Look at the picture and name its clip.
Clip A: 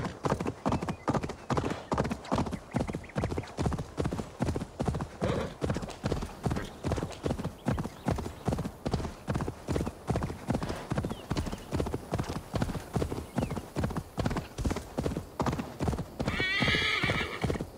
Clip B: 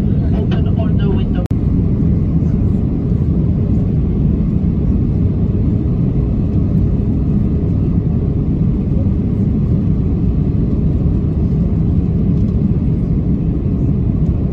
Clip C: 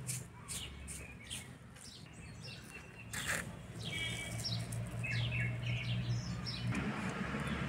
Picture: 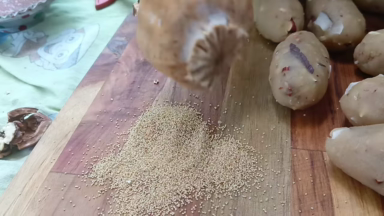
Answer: C